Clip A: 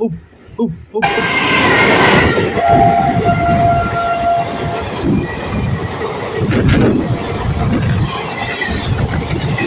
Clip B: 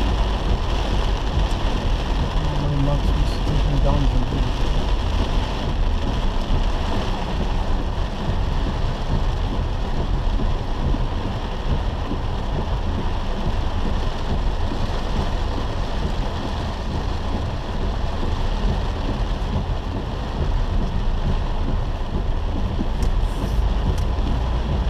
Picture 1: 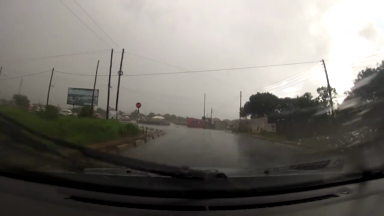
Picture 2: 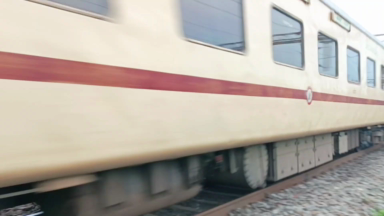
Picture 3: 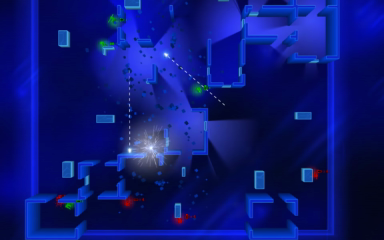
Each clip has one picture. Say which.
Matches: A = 2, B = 1